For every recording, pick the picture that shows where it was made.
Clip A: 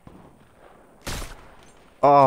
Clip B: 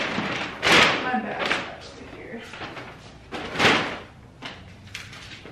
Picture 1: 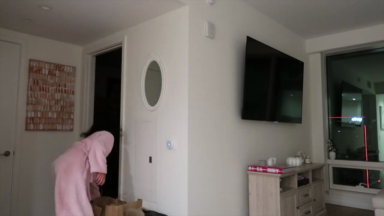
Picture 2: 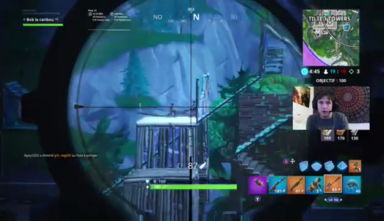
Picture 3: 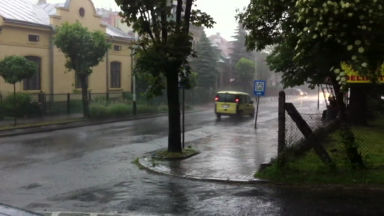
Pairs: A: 2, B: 1